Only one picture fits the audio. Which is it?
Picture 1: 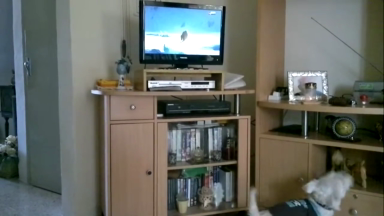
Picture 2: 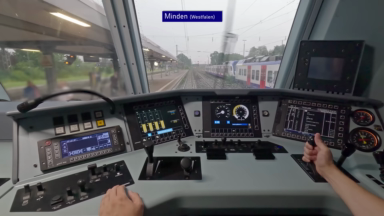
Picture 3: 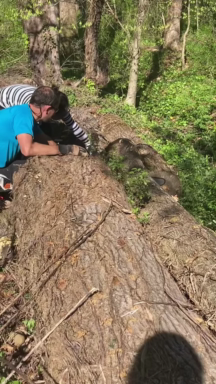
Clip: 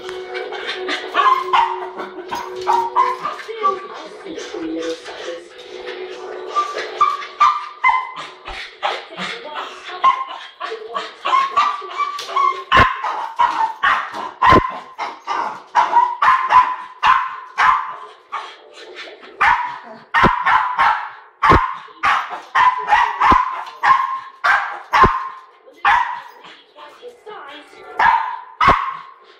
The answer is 1